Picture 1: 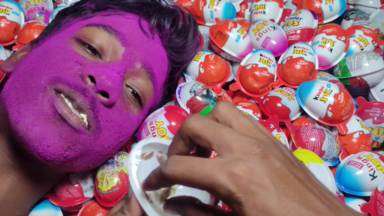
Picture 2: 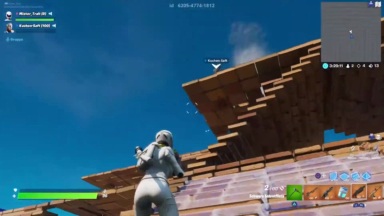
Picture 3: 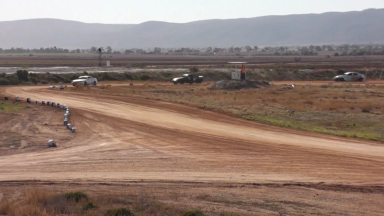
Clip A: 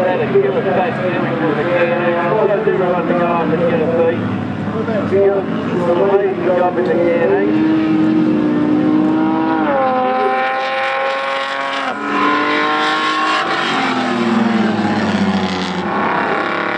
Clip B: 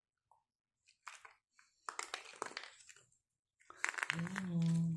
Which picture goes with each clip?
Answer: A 3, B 1